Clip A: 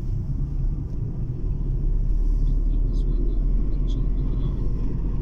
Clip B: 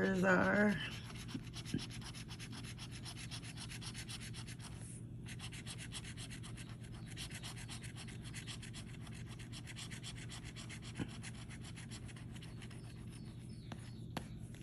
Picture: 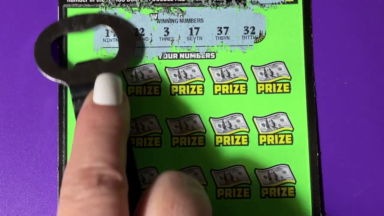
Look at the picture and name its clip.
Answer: B